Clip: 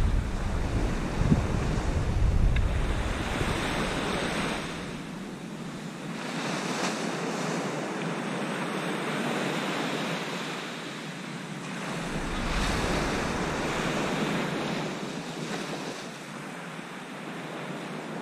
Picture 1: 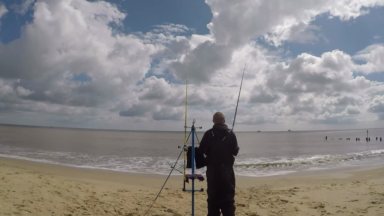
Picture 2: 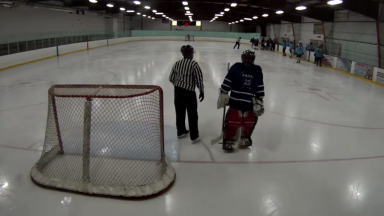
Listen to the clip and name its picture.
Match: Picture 1